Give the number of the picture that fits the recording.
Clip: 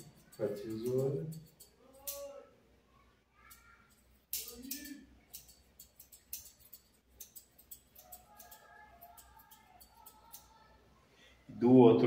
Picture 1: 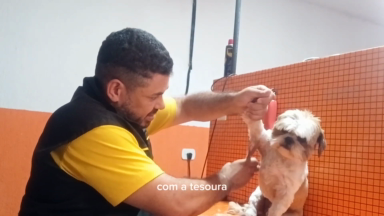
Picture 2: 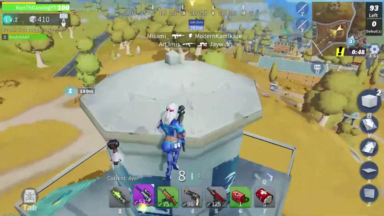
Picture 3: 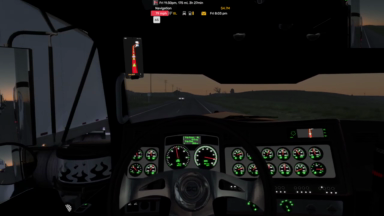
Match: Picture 1